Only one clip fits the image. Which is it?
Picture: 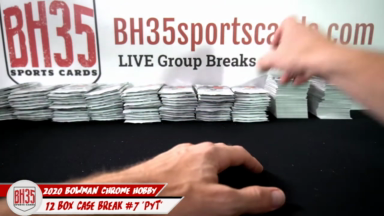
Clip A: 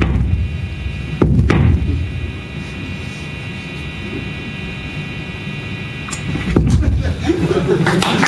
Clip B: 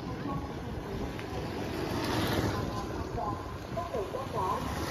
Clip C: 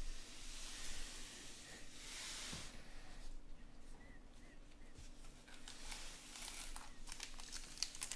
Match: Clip C